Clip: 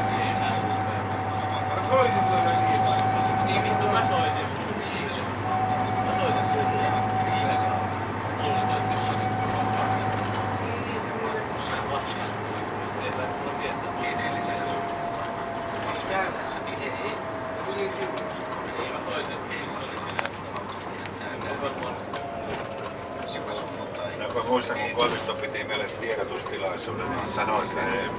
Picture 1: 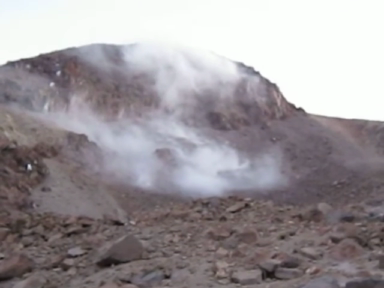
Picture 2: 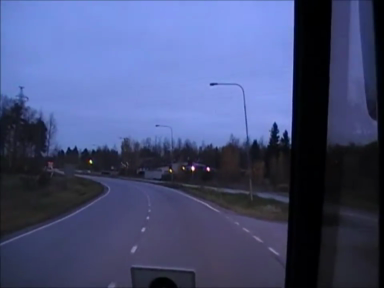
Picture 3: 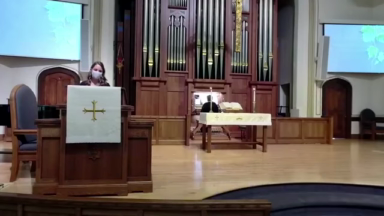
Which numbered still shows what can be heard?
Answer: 2